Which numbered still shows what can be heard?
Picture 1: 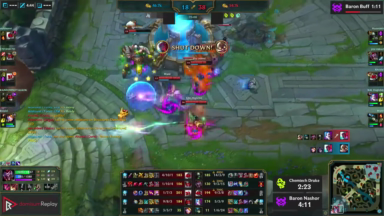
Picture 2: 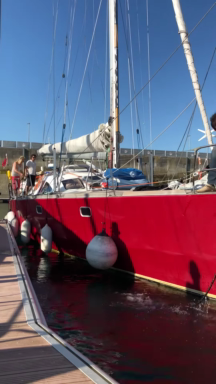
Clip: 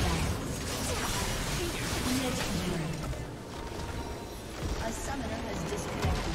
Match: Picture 1